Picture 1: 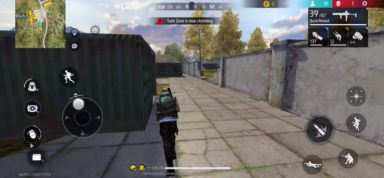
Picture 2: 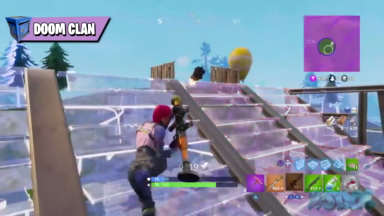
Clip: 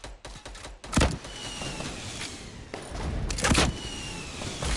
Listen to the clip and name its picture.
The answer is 2